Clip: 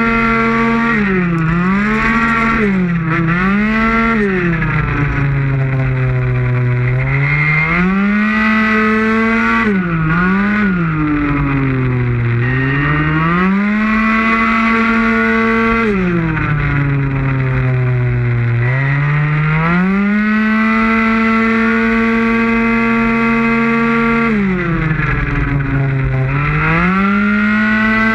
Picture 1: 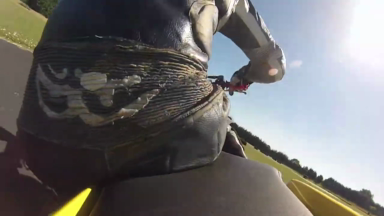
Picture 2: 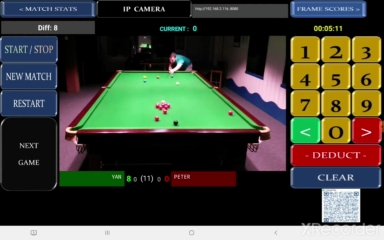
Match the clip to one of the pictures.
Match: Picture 1